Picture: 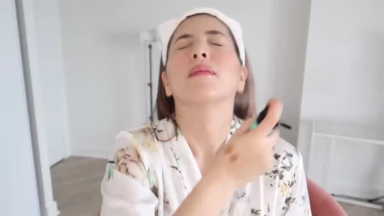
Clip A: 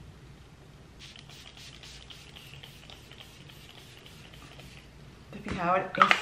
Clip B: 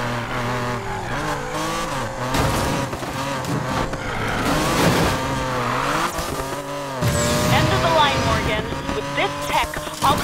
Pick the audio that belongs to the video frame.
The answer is A